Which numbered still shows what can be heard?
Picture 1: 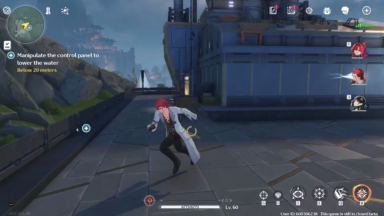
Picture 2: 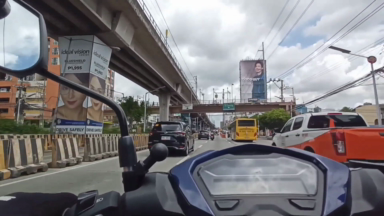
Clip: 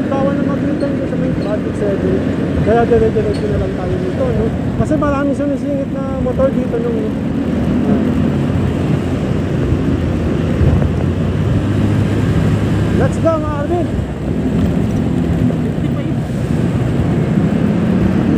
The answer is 2